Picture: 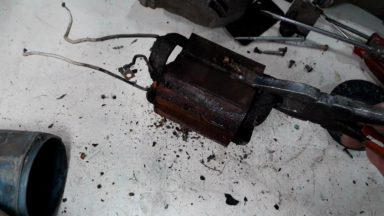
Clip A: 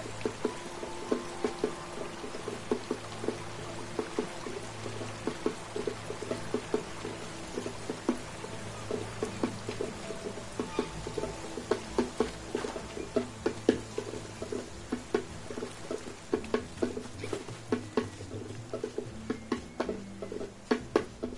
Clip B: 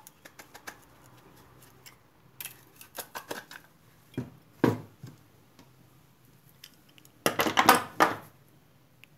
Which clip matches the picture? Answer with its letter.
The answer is B